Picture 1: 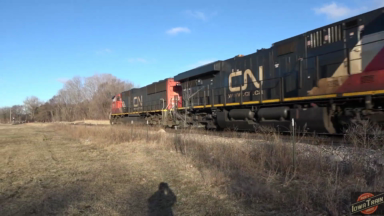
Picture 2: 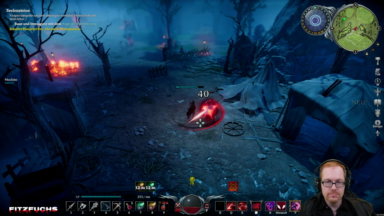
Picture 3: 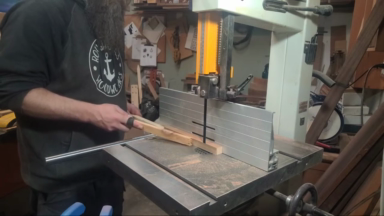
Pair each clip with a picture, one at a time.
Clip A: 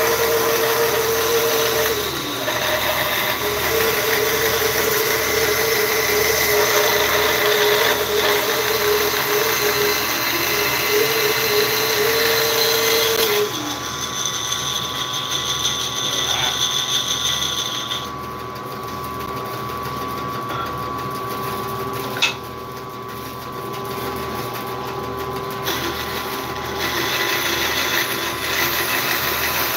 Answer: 3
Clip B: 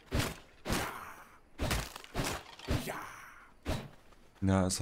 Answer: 2